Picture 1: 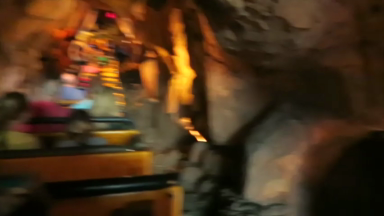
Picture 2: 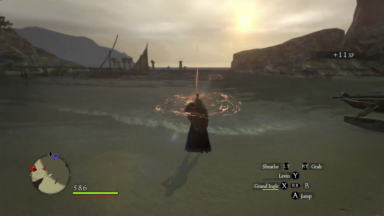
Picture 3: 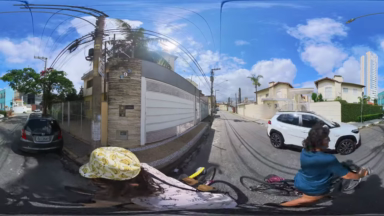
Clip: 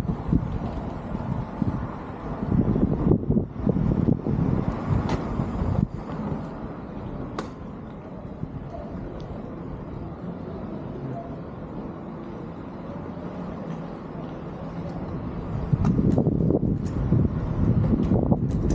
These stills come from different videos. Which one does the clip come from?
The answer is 3